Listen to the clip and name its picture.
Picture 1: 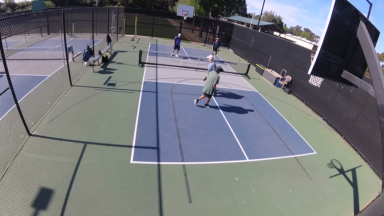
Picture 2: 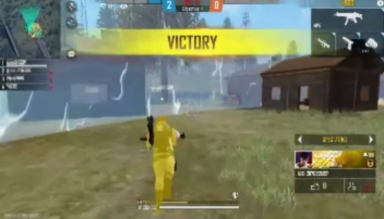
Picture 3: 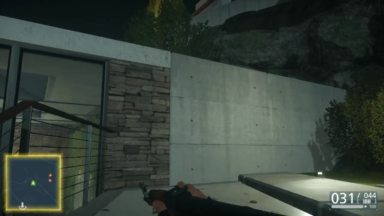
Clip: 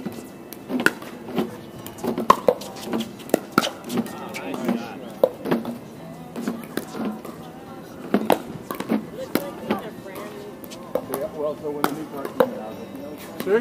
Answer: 1